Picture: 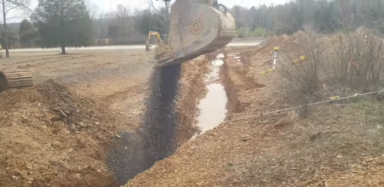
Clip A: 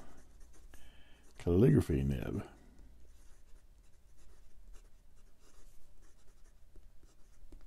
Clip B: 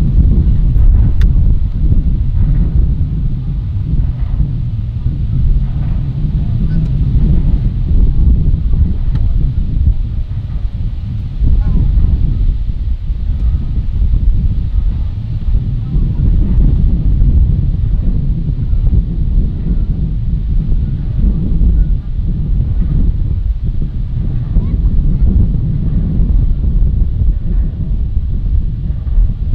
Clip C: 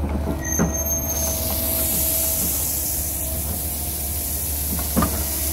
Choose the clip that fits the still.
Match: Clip C